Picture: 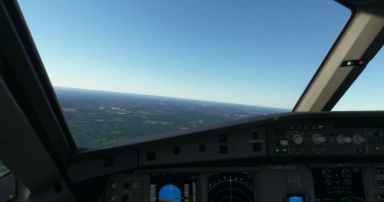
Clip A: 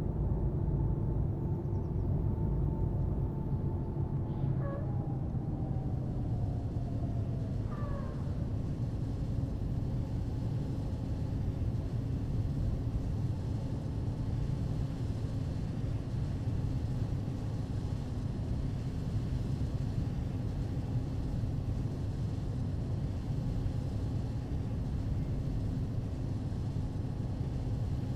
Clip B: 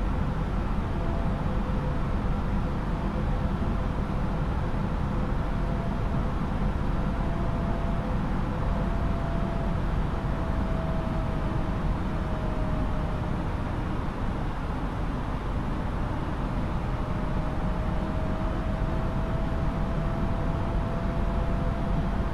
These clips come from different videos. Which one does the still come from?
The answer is B